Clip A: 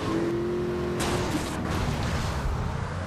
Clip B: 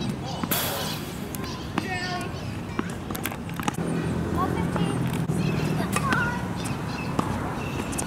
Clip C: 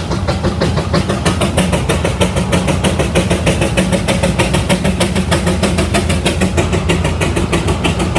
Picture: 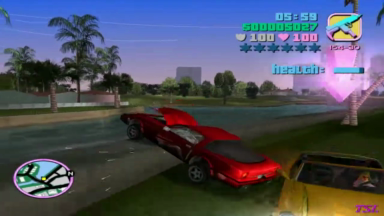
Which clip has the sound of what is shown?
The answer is A